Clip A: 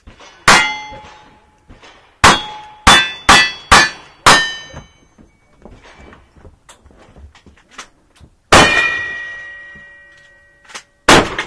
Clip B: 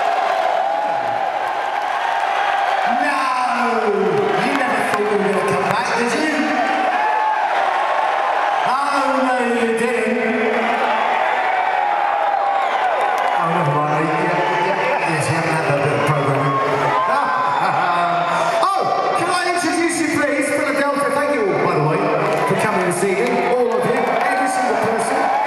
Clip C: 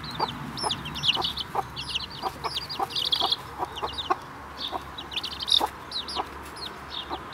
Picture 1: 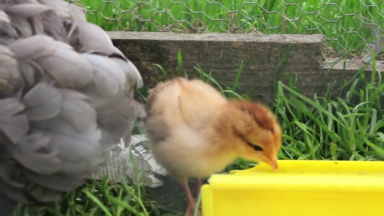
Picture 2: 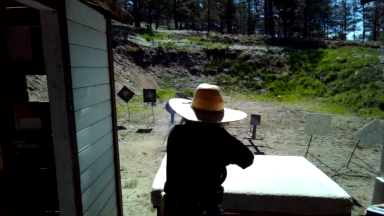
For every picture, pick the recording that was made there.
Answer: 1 C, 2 A